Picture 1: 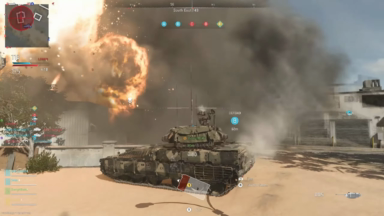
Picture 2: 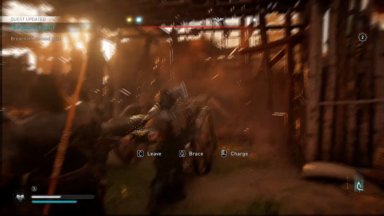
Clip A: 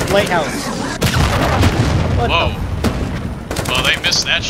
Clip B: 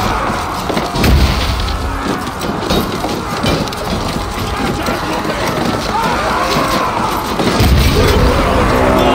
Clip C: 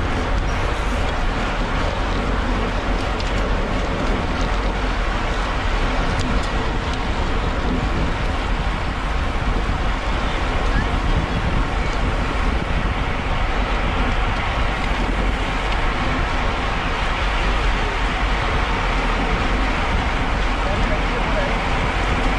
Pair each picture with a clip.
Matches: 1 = A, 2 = B